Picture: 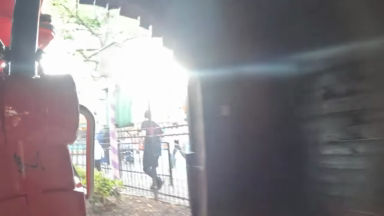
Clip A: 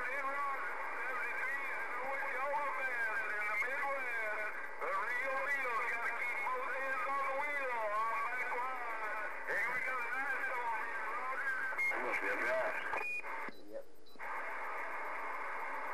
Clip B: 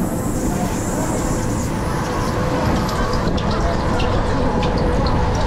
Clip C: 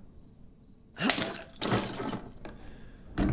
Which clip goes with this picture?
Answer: B